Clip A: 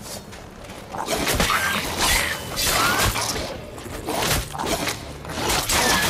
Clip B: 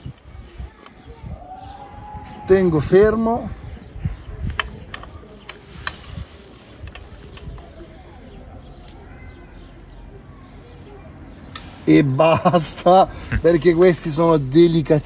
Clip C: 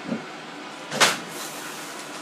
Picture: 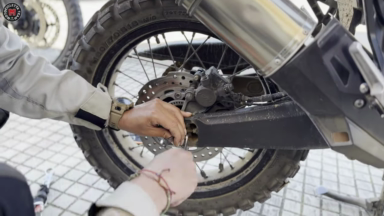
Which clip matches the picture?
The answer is B